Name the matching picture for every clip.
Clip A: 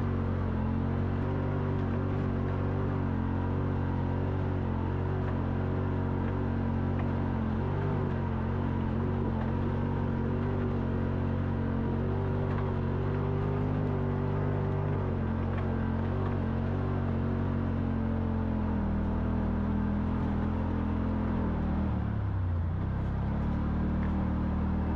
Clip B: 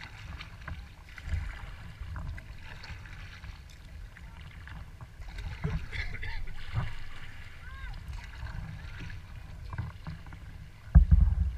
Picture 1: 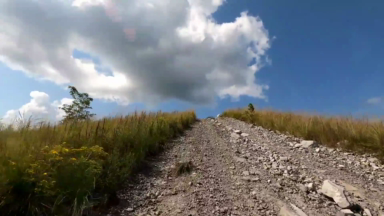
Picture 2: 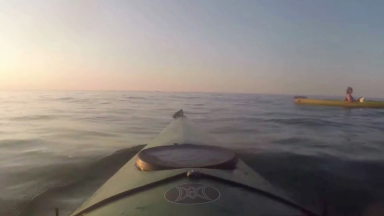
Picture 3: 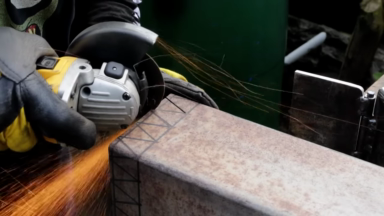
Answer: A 1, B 2